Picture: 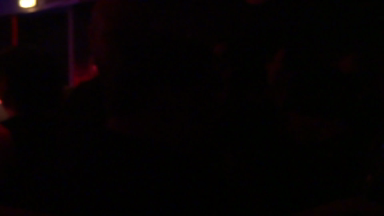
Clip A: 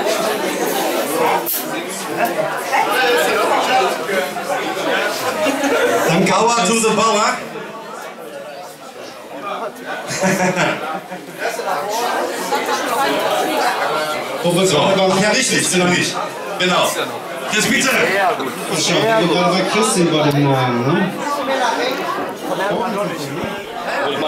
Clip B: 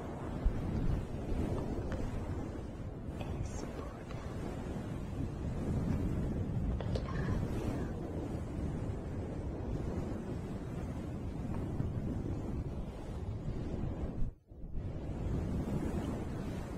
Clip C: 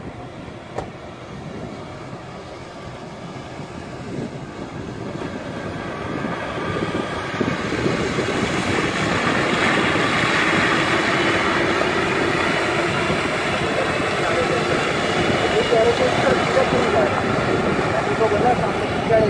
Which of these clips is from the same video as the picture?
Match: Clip A